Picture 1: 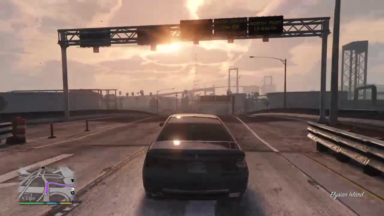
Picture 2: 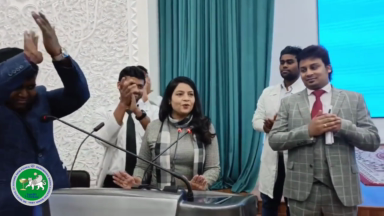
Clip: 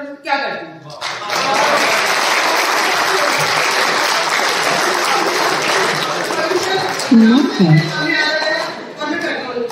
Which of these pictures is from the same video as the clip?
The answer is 2